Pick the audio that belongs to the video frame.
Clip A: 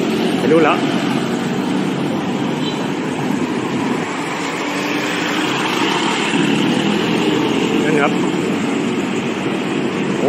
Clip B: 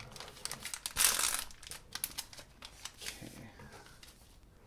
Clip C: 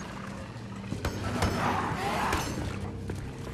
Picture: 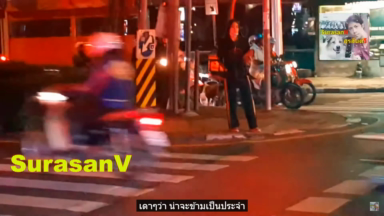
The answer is A